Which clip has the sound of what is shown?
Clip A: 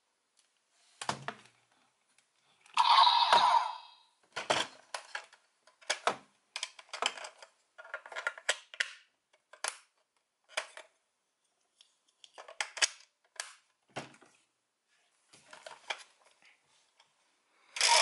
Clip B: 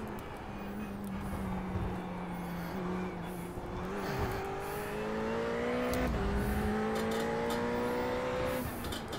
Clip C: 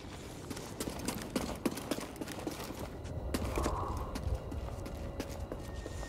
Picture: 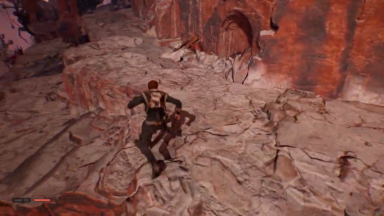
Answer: C